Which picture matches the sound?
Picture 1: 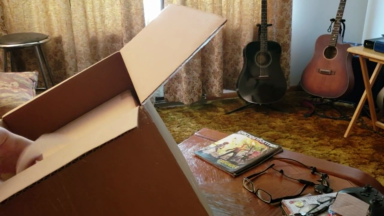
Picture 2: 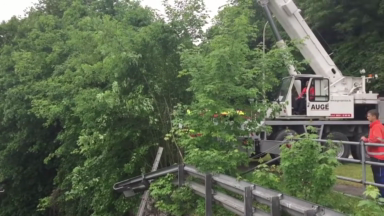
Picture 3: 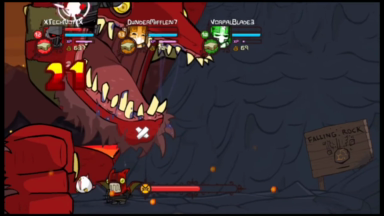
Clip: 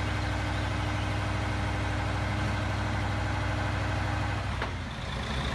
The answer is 2